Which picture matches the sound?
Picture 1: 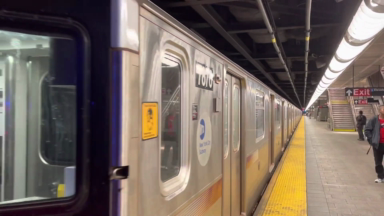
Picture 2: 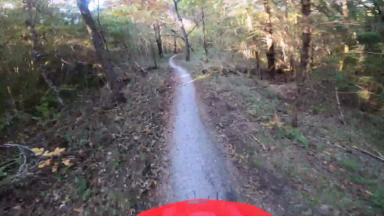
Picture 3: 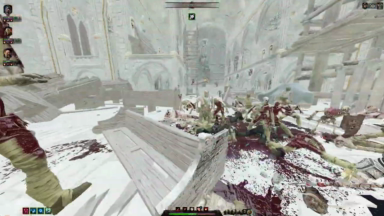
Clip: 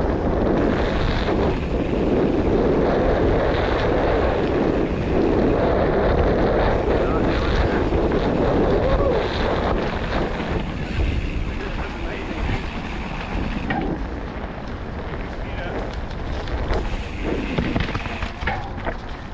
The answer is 2